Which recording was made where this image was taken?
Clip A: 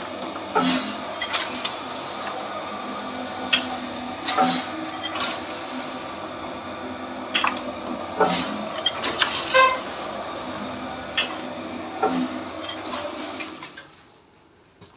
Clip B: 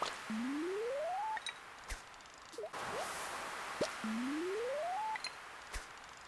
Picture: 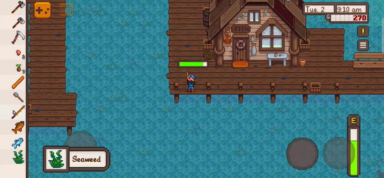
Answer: B